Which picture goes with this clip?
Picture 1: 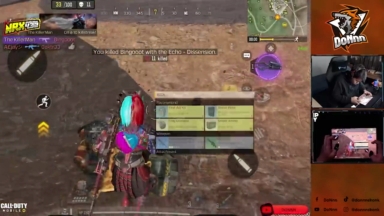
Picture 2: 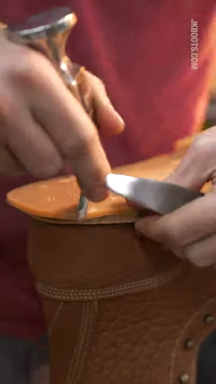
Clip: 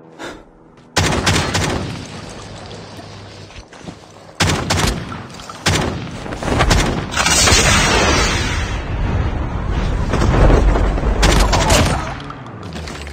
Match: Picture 1